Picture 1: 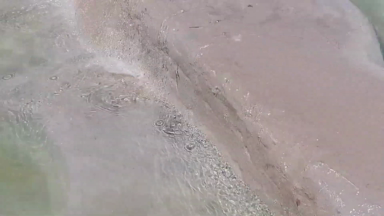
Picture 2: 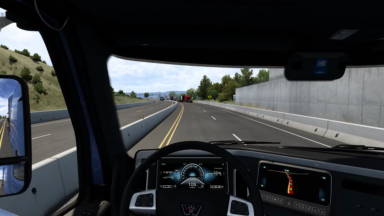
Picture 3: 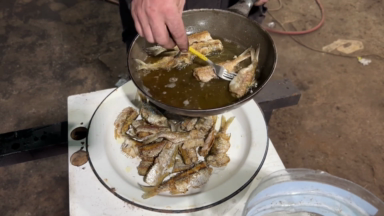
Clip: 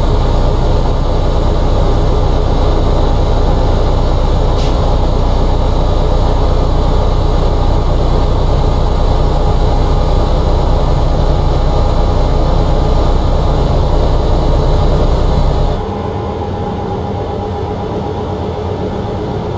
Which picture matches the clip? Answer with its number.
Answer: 2